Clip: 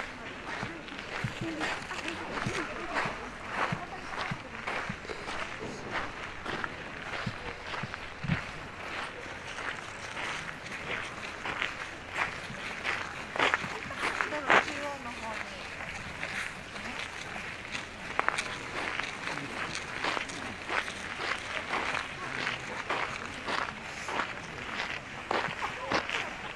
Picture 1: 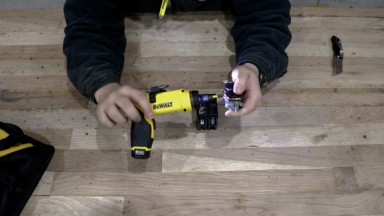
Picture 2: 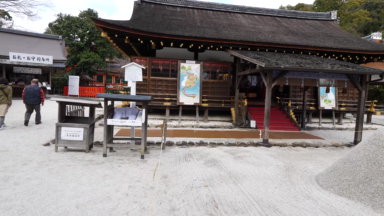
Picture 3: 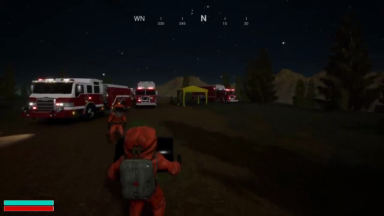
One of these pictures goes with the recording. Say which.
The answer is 2